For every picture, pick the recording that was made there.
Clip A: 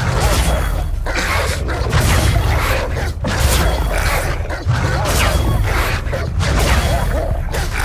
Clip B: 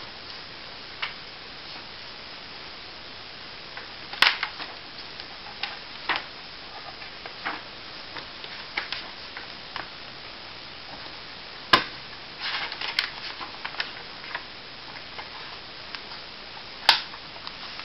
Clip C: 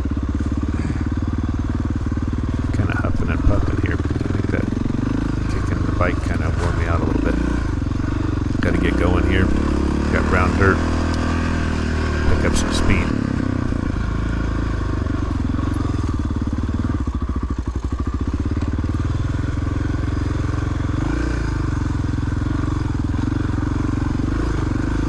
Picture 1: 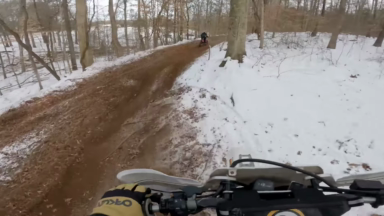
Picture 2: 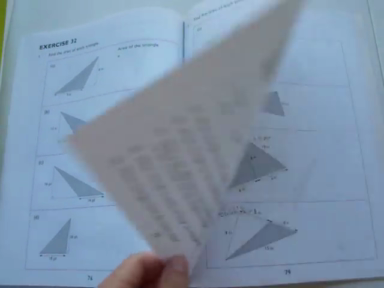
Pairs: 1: C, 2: B